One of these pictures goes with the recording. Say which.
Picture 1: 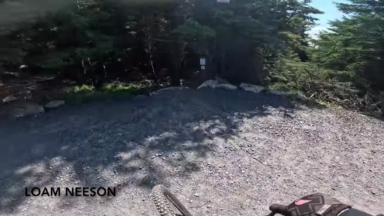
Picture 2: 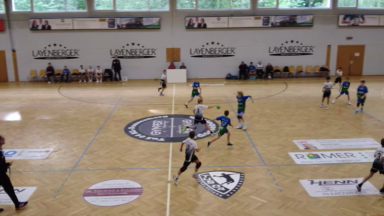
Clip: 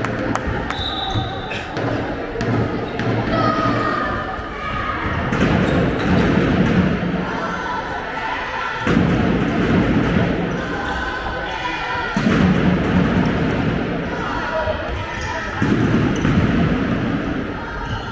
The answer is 2